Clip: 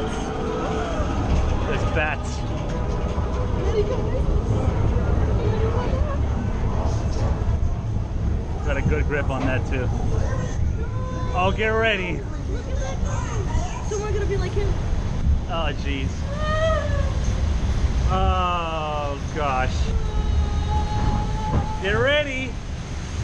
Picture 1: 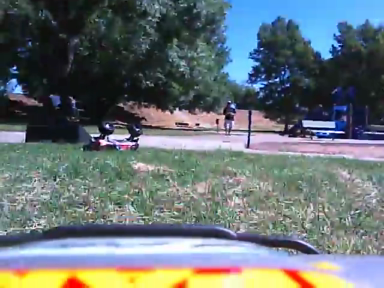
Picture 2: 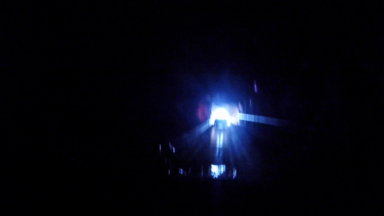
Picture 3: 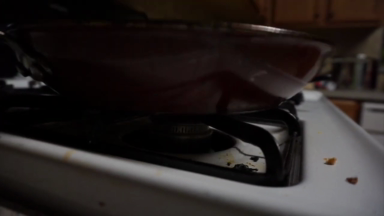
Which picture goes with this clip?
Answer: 2